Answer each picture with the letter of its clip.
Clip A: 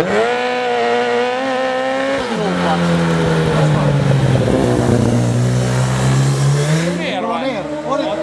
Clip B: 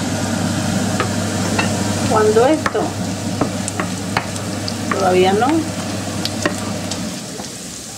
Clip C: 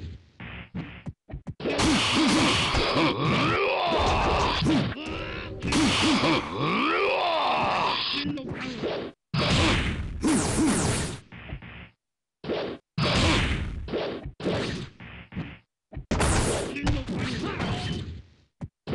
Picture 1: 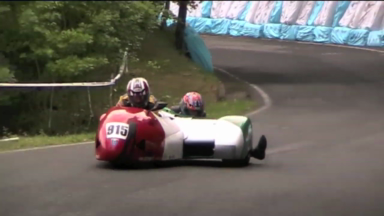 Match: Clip A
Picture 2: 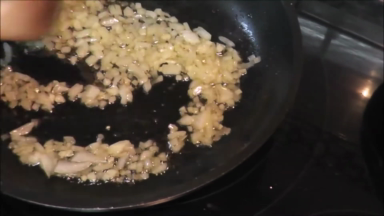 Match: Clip B